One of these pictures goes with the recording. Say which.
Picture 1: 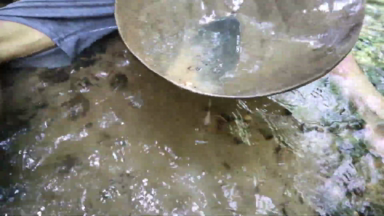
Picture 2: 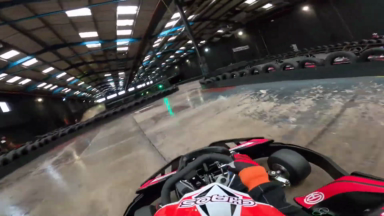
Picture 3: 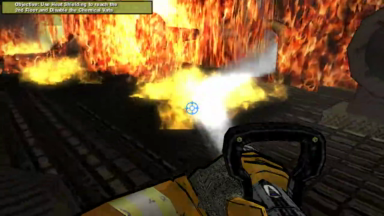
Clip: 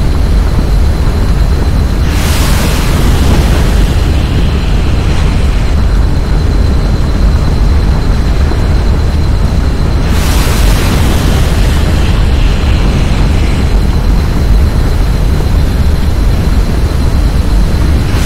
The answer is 3